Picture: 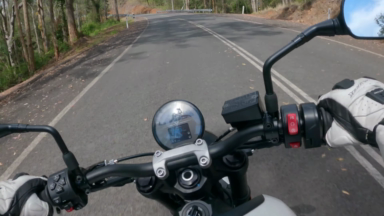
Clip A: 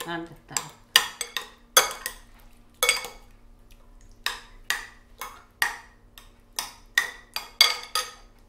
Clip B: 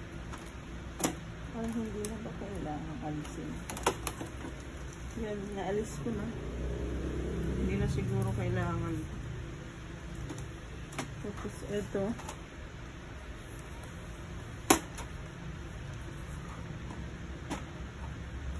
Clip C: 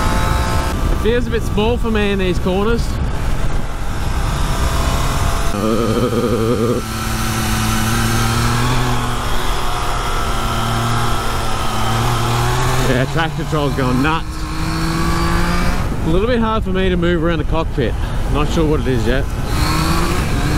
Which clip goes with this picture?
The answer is C